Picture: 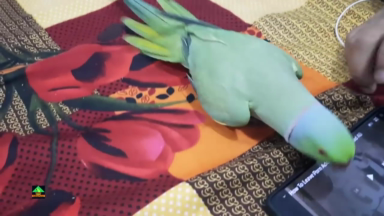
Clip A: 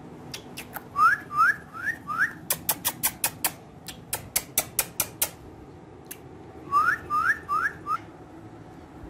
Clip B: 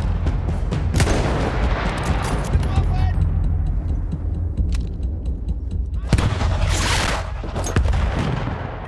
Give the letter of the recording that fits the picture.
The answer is A